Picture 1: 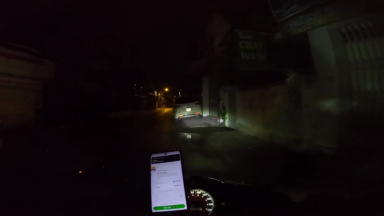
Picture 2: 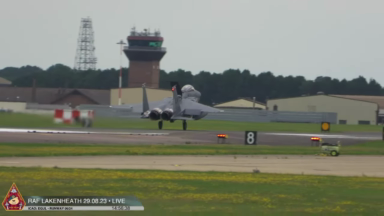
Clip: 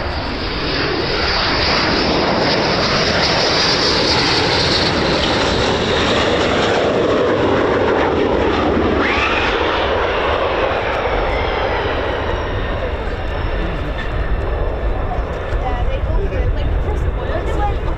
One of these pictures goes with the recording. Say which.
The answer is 2